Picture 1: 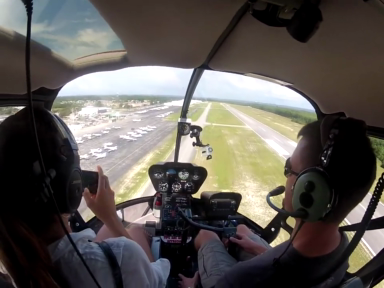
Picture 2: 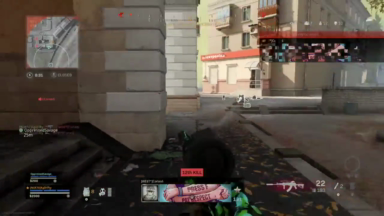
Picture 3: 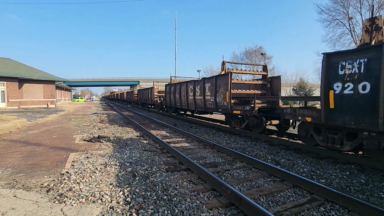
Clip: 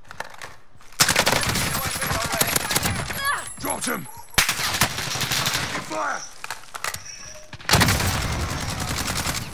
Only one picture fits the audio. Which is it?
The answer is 2